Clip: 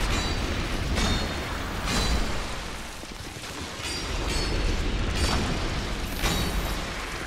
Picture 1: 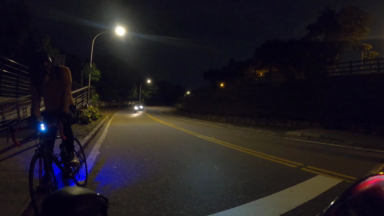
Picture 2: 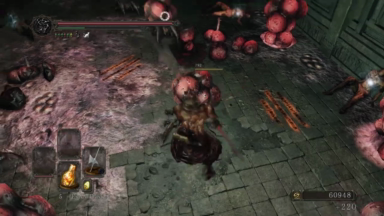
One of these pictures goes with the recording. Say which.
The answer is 2